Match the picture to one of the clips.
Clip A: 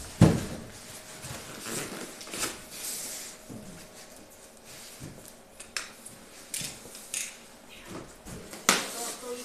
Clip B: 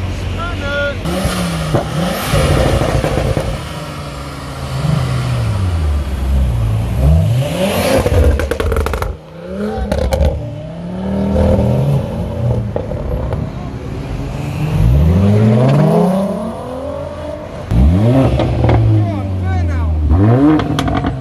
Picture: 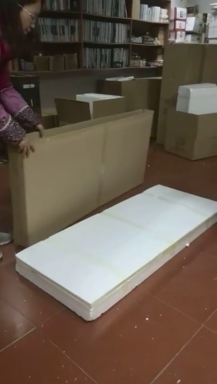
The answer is A